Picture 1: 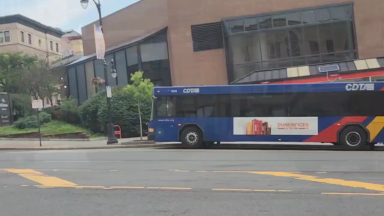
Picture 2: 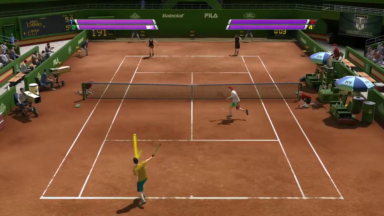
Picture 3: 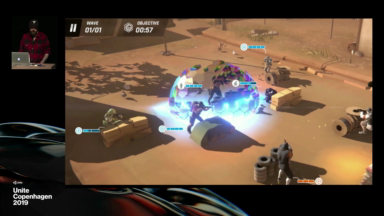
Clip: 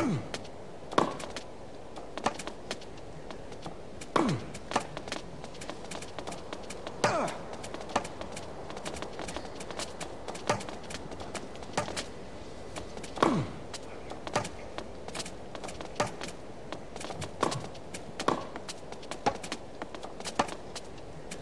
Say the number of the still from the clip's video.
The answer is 2